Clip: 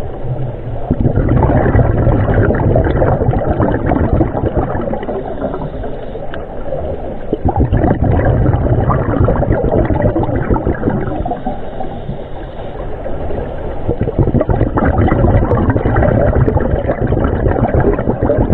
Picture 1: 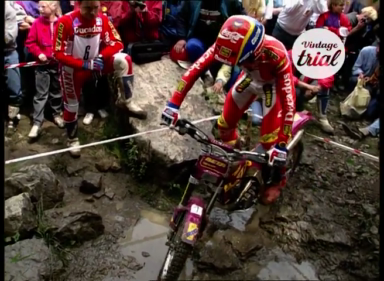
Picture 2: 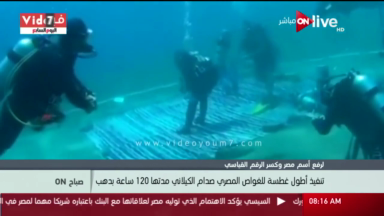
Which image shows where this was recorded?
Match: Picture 2